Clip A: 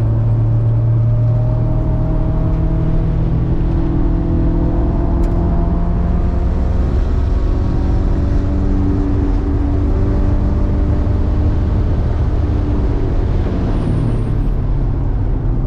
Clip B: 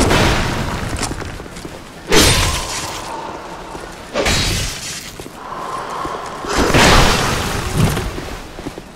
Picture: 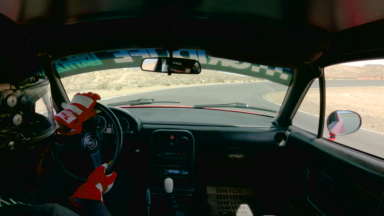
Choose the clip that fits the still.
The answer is A